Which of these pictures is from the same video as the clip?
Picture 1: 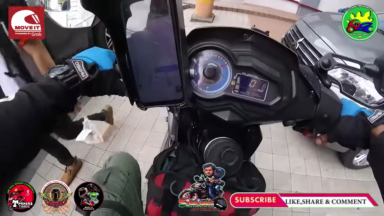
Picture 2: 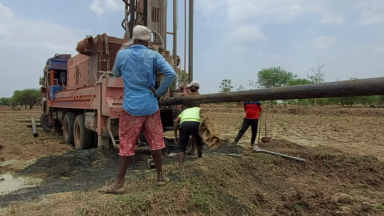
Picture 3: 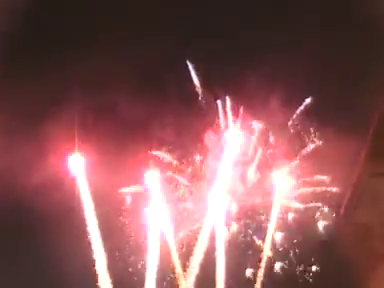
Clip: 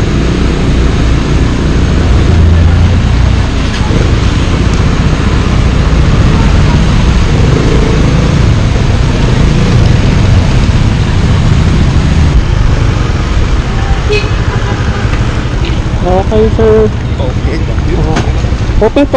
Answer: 1